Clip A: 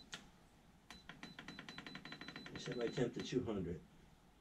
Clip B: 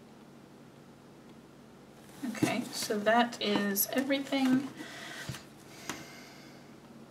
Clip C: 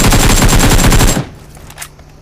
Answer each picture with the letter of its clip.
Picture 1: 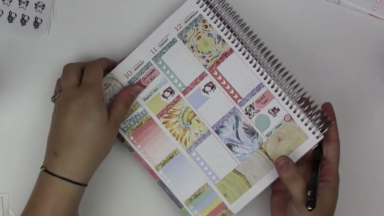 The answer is B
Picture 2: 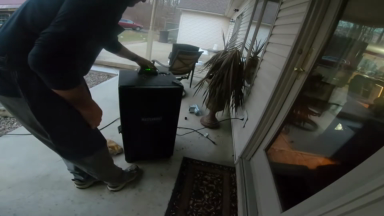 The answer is A